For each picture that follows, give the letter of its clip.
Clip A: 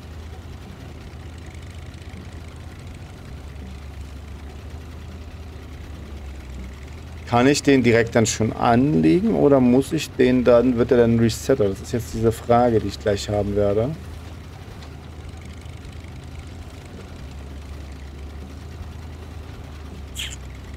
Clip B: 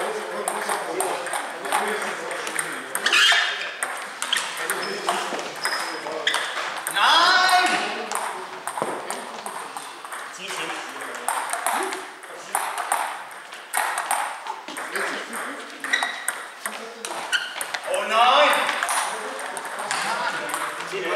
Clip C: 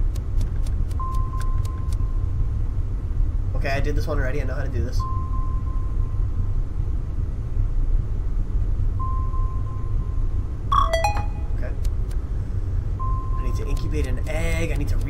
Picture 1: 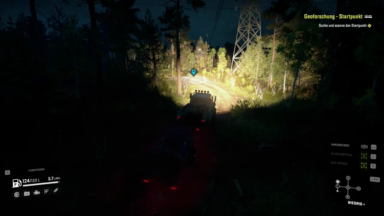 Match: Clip A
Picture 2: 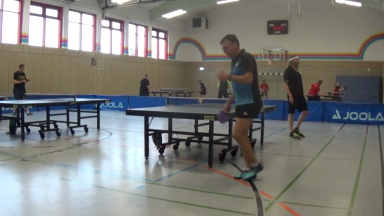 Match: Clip B